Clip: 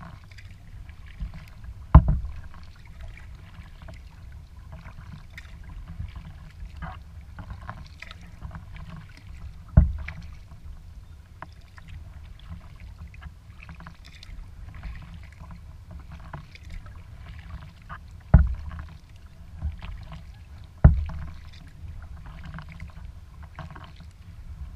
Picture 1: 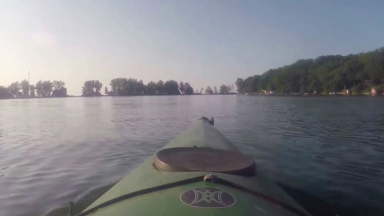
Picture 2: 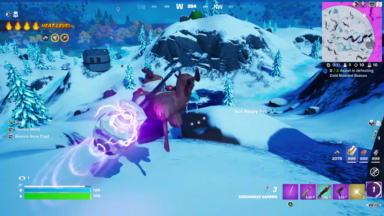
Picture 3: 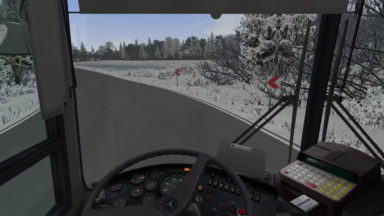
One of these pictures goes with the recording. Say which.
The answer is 1